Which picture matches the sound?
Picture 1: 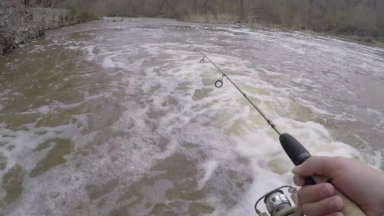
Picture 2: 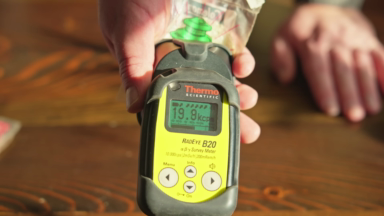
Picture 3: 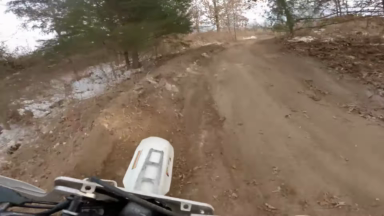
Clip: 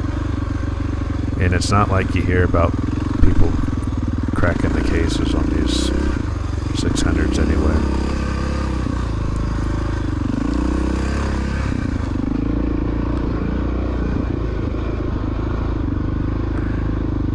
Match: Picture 3